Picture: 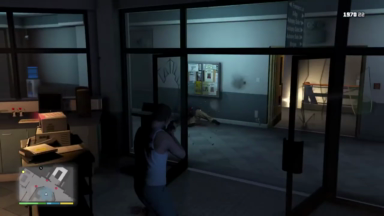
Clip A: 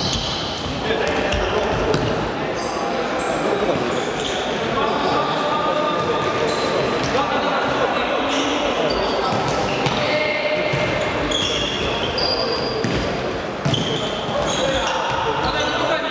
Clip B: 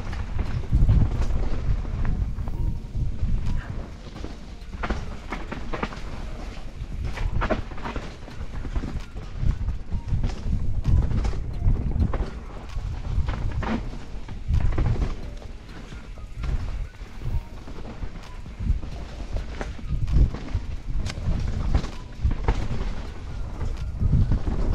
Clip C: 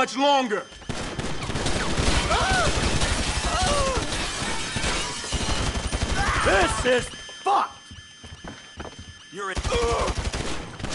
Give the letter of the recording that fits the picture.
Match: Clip C